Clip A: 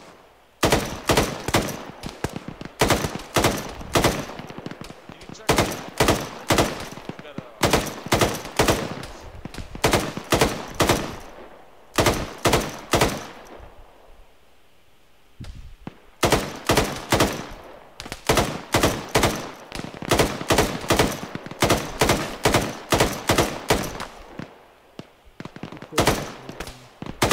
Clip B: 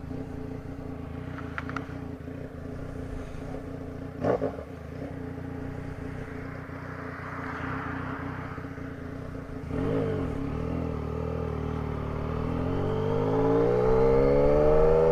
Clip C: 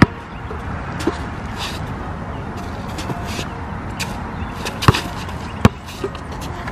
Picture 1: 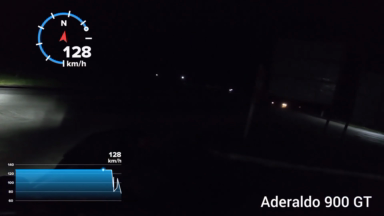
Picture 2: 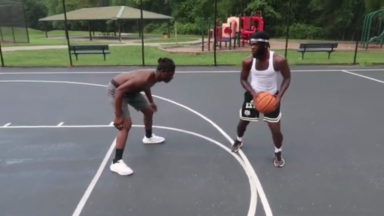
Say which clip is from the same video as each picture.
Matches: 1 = B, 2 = C